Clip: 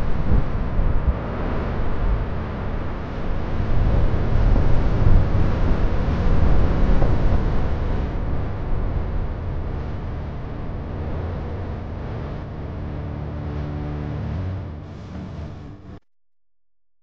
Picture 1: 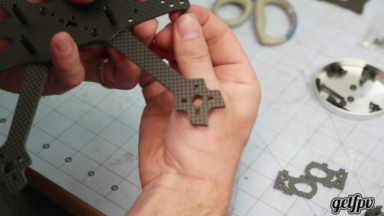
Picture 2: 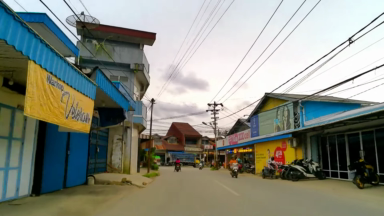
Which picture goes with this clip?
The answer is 2